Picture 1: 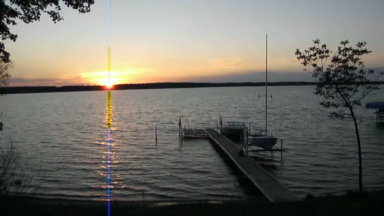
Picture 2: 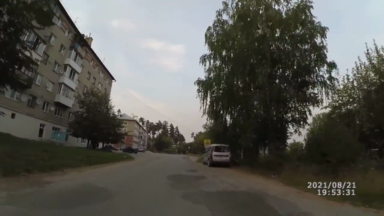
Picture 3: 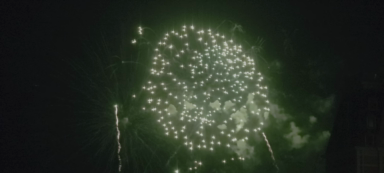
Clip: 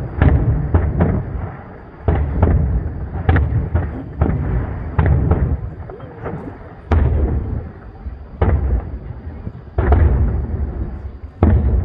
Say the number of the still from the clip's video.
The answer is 3